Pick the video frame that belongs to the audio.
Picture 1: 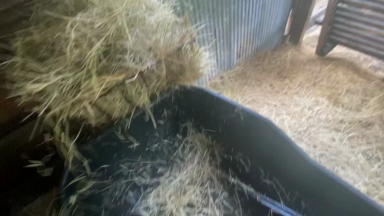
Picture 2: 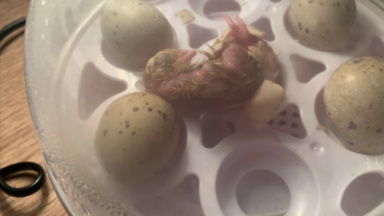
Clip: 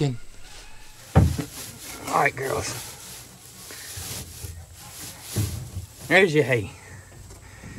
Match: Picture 1